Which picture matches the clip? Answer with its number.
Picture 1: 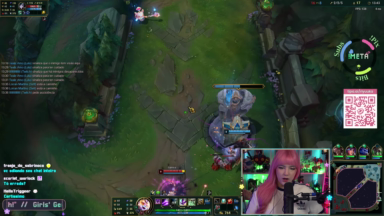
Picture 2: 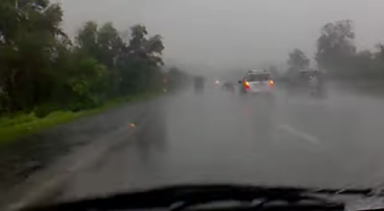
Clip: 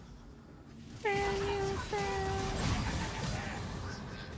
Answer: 1